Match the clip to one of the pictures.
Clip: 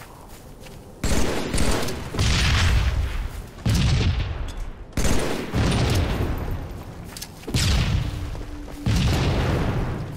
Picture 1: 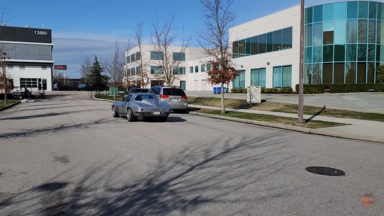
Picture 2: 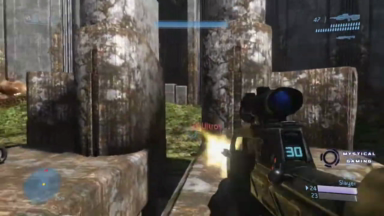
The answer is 2